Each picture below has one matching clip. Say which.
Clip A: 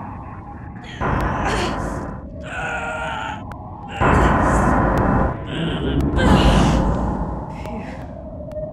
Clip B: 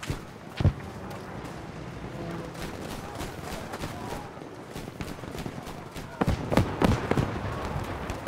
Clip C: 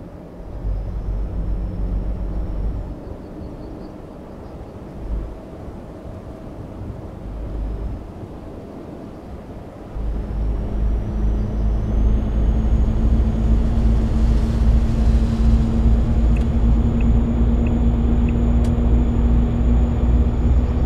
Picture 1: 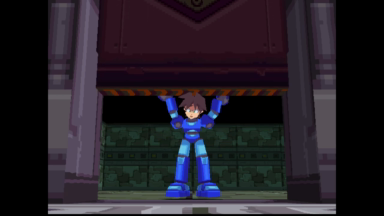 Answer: A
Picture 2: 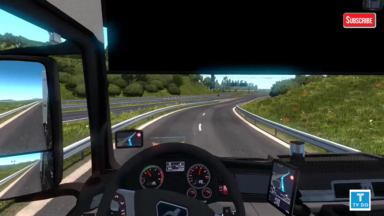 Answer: C